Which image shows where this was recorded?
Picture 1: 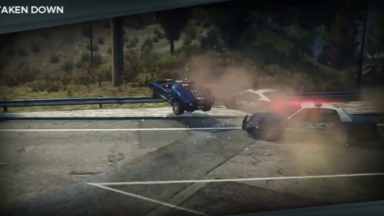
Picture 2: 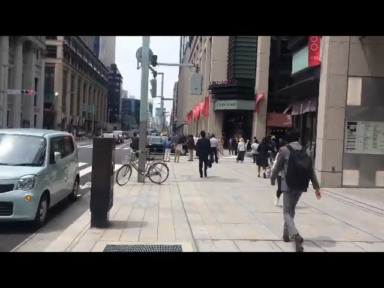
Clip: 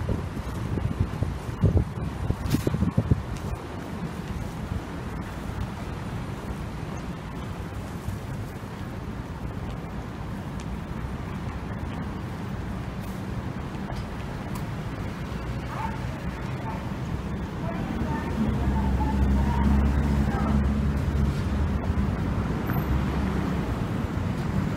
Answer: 2